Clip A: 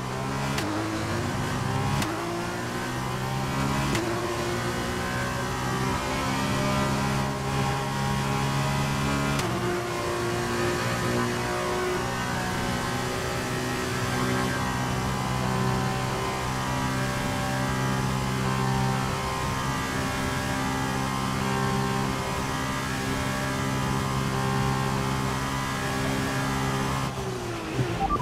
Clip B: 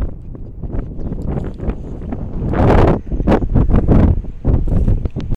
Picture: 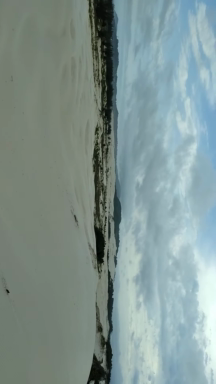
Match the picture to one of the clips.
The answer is B